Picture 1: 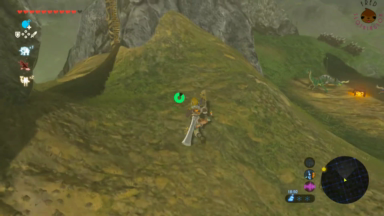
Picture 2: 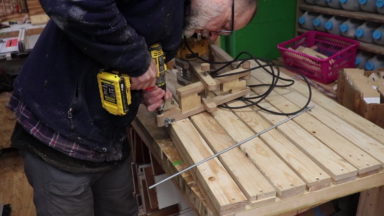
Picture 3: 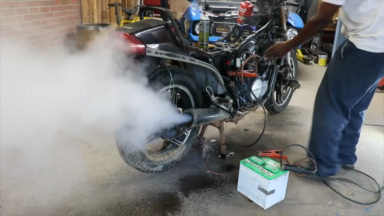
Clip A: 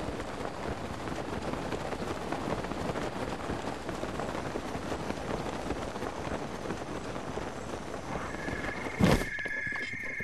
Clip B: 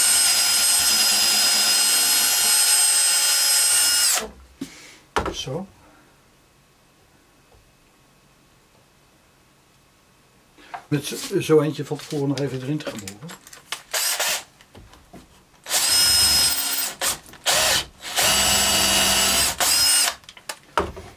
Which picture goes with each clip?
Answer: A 1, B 2